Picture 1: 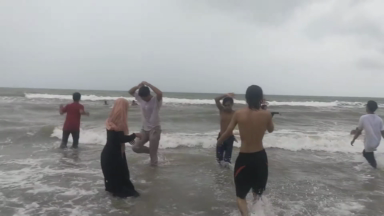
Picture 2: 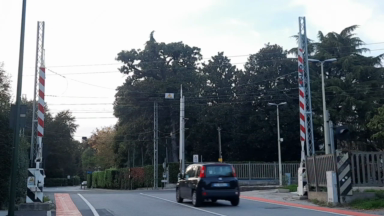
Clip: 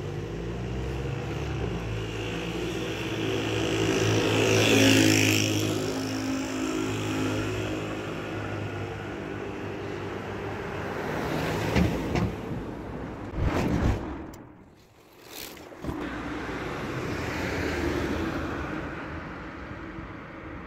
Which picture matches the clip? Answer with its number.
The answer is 2